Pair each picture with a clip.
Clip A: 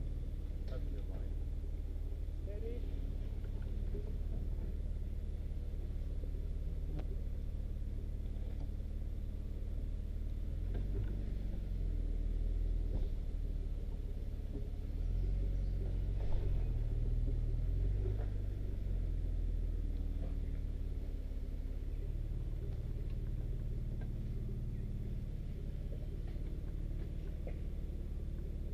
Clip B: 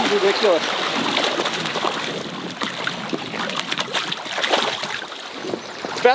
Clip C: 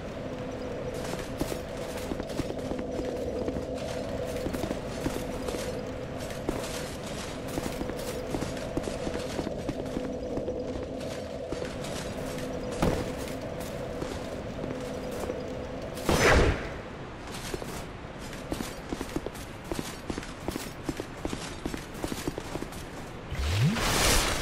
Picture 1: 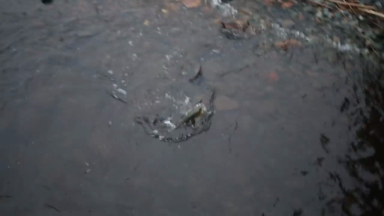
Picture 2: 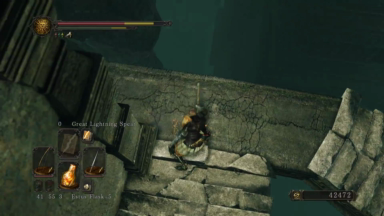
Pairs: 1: B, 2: C